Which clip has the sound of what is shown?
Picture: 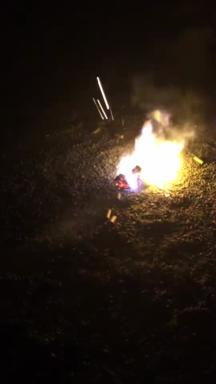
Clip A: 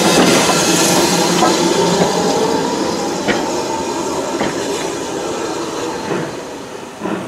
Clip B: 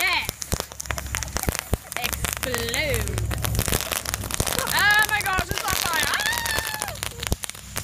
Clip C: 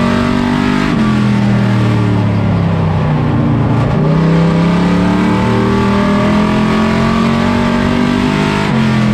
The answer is B